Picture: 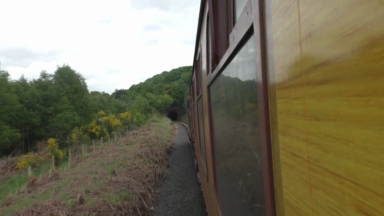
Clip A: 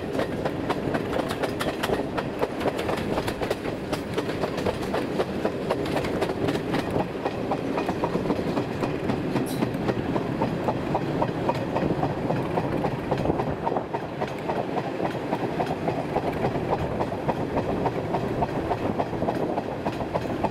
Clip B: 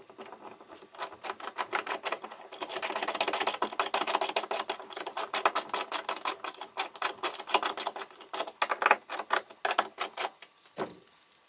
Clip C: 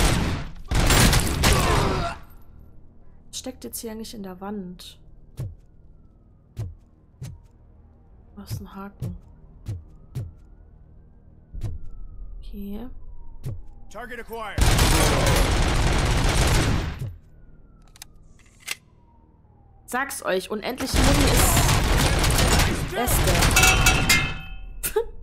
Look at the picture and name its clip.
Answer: A